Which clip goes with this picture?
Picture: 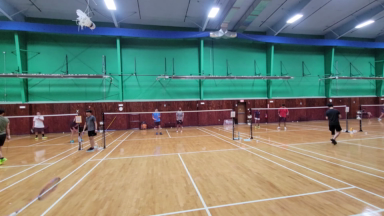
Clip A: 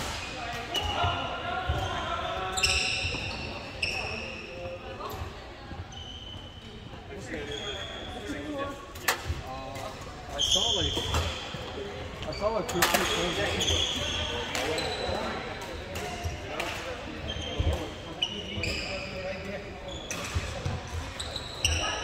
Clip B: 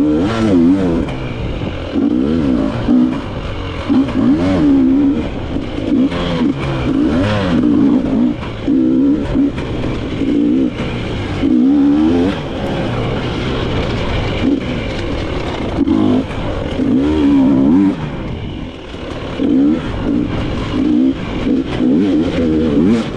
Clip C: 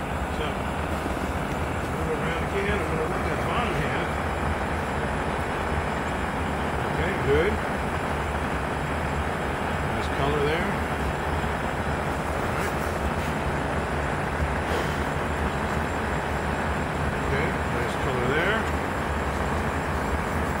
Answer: A